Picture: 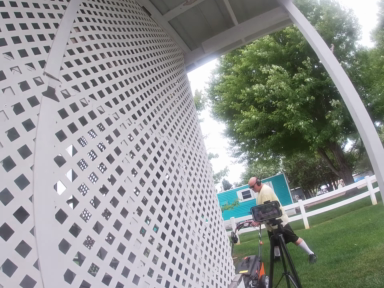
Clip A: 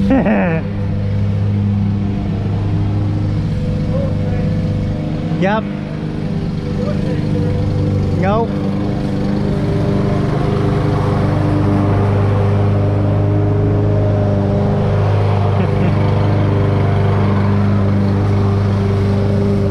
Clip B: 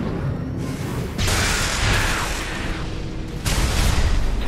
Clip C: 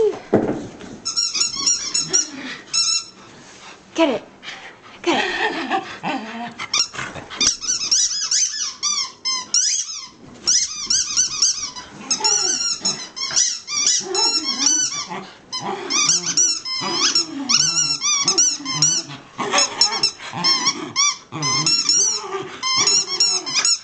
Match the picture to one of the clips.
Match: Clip A